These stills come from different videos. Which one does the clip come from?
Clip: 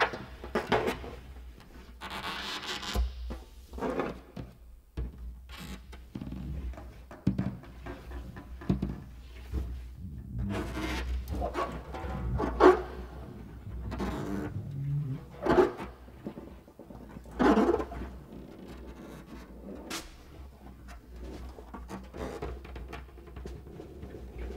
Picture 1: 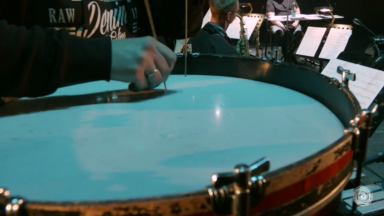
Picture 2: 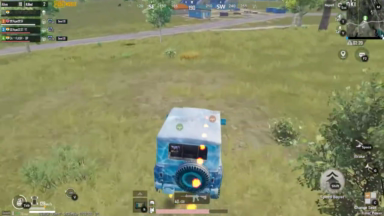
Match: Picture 1